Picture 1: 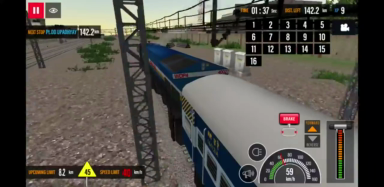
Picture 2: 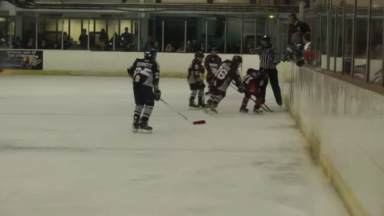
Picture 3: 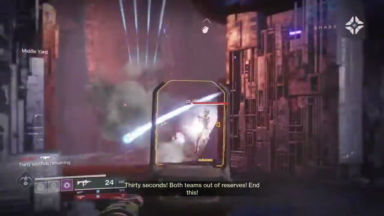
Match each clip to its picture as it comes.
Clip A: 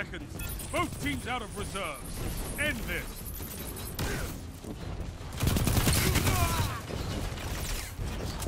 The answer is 3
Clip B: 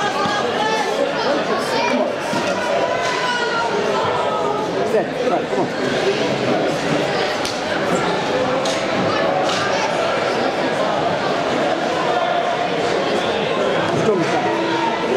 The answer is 2